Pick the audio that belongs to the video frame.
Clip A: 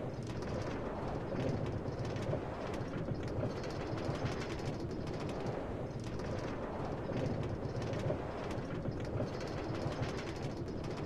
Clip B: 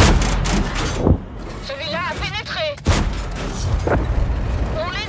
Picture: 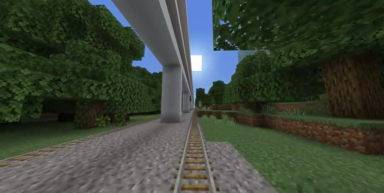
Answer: A